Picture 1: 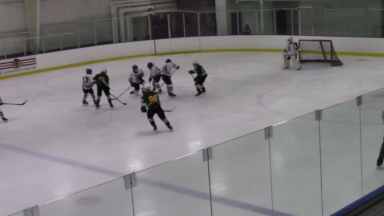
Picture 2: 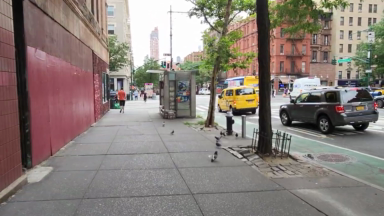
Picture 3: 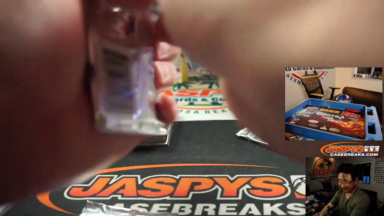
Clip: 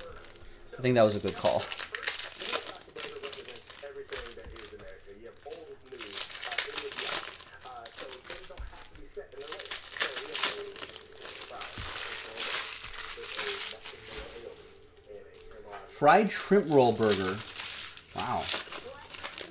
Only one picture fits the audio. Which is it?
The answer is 3